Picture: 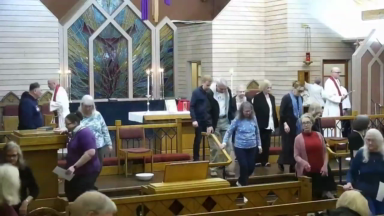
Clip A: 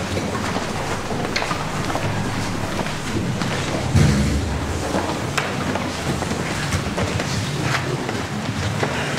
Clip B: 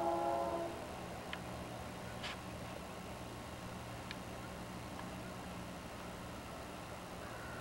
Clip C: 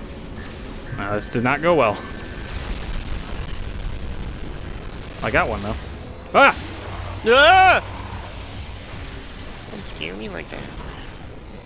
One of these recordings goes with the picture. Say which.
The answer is A